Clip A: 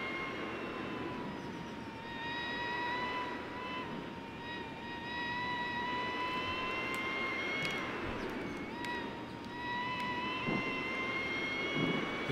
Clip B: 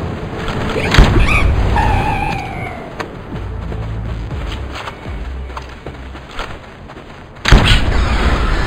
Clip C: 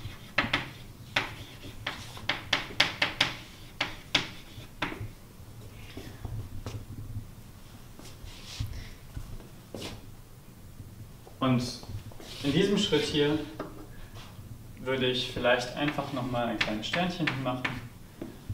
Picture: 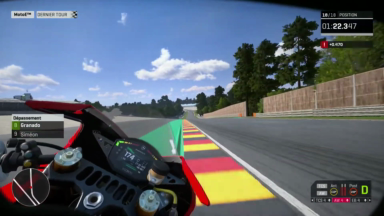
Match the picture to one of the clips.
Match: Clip A